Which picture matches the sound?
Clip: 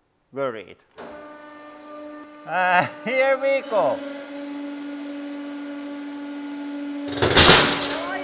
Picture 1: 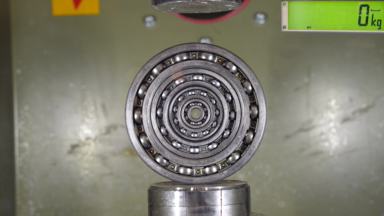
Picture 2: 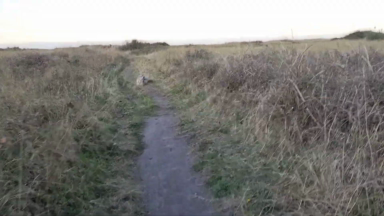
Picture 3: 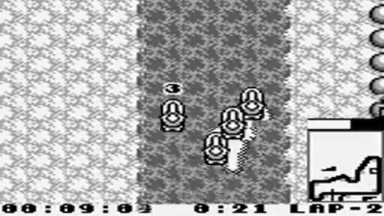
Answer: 1